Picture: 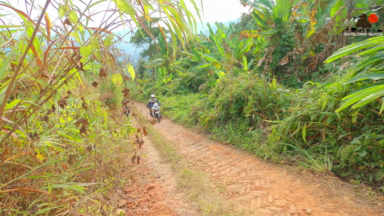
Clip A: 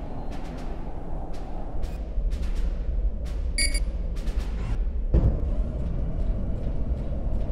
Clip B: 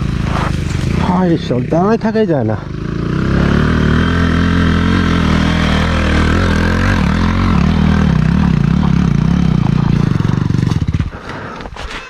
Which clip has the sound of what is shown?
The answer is B